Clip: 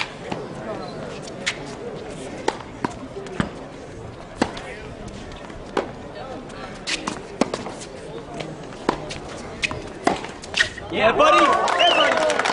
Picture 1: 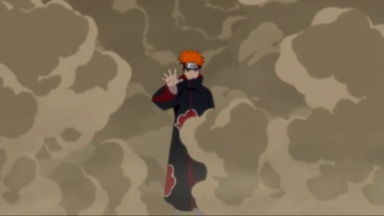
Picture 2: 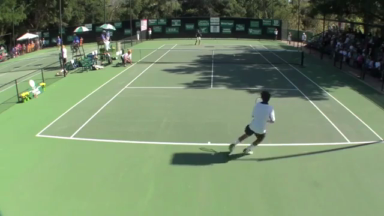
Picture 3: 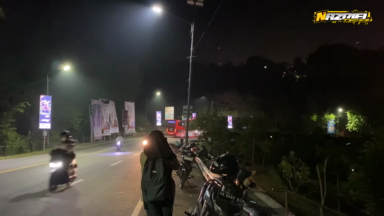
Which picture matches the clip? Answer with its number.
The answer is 2